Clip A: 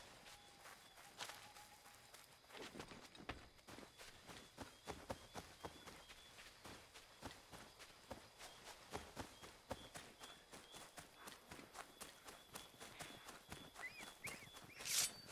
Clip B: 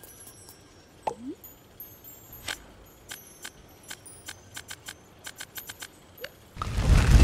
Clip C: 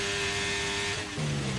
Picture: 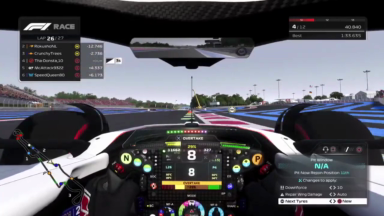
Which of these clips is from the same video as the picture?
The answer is C